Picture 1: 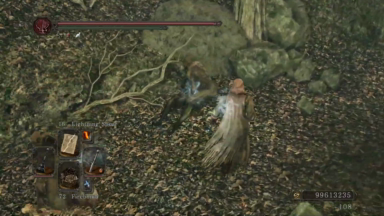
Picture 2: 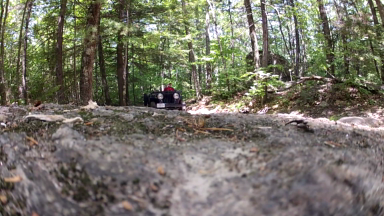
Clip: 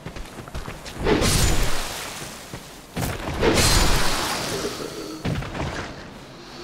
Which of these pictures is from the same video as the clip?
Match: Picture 1